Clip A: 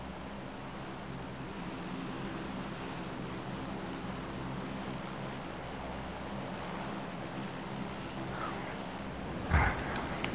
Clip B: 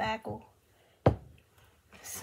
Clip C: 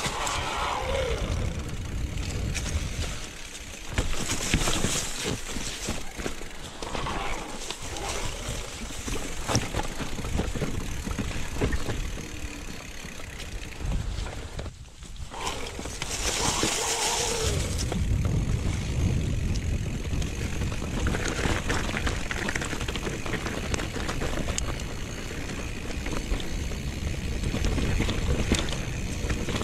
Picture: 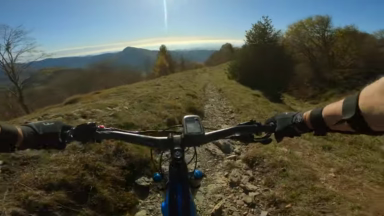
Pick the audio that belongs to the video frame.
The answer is C